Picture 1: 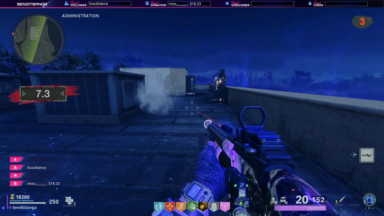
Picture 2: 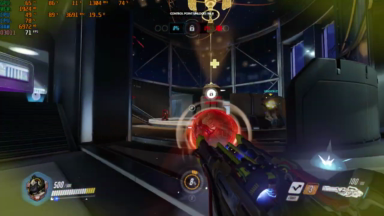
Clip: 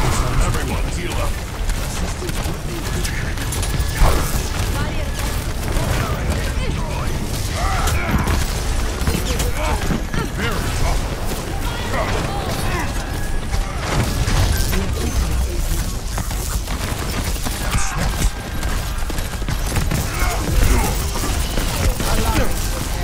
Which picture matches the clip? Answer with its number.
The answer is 2